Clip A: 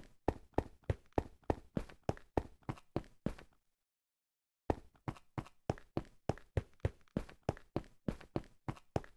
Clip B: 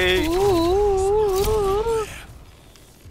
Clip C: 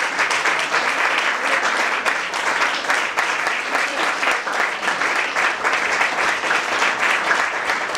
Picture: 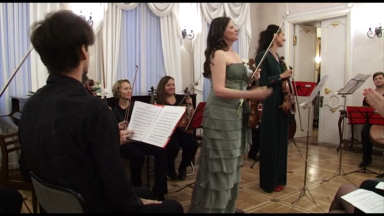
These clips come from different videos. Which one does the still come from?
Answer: C